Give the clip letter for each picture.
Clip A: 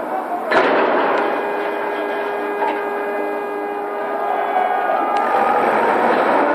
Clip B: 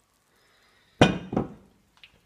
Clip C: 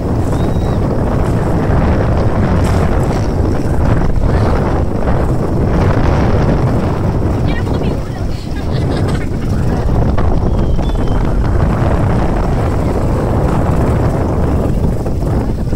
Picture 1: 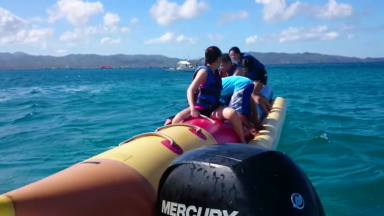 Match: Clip C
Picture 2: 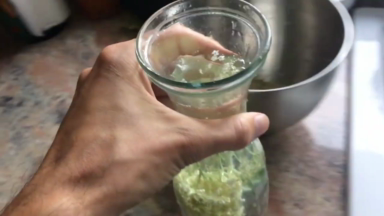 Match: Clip B